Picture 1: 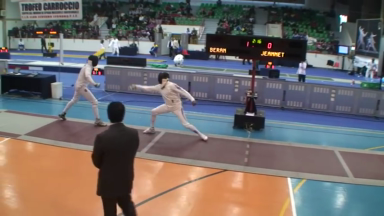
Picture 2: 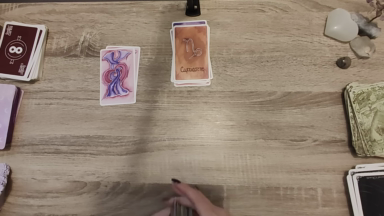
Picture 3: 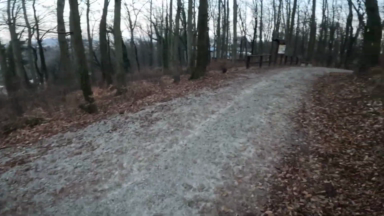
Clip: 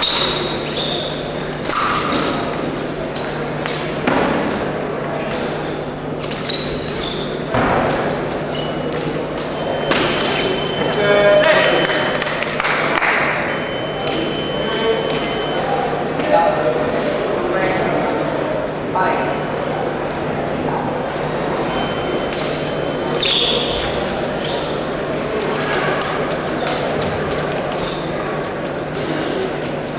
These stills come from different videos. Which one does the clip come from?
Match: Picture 1